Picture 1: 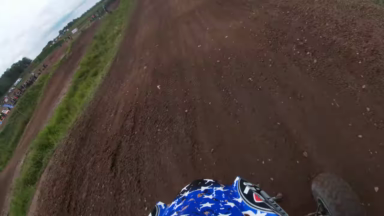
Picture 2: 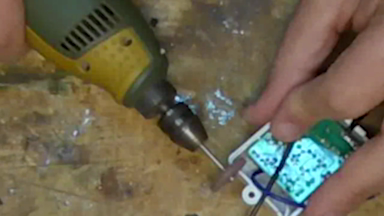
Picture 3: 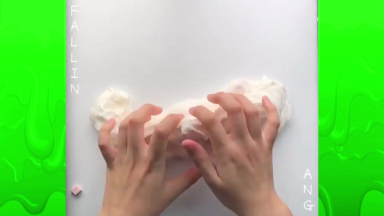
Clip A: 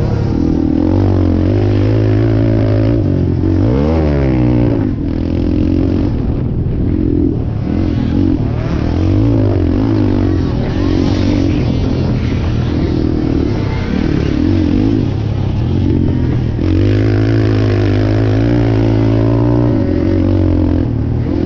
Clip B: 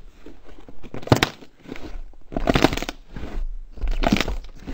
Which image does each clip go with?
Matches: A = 1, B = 3